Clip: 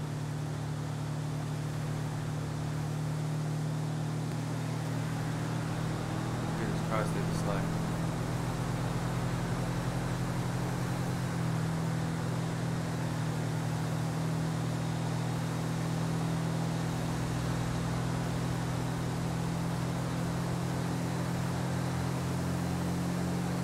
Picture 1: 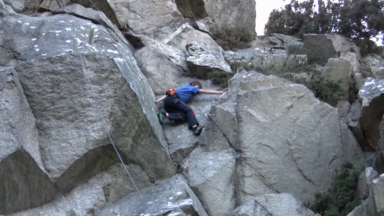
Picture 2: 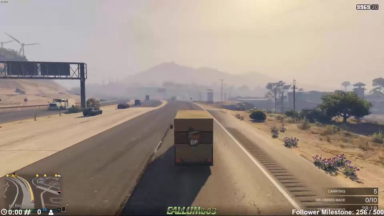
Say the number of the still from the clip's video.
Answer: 2